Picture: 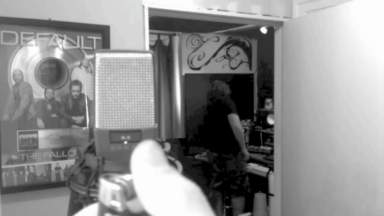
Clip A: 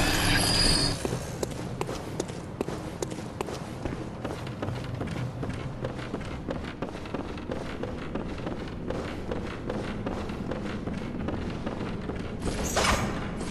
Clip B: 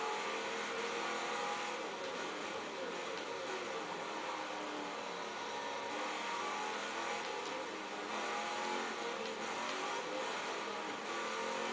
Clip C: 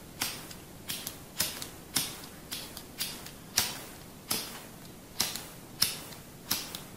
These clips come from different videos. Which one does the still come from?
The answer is C